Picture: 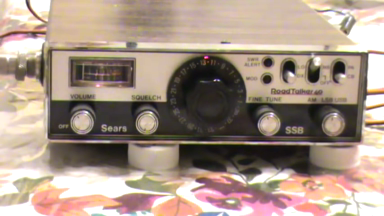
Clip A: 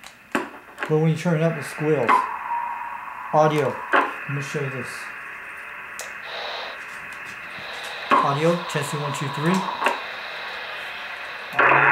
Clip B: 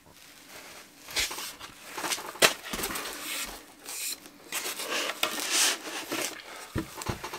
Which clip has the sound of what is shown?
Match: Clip A